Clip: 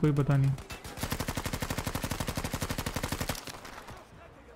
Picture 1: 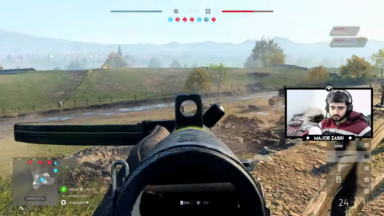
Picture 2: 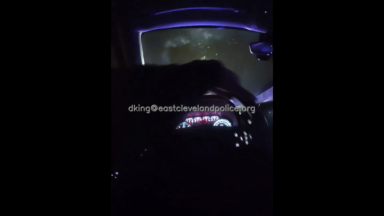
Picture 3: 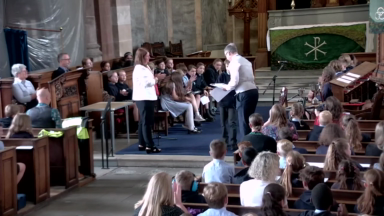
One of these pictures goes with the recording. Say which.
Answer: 1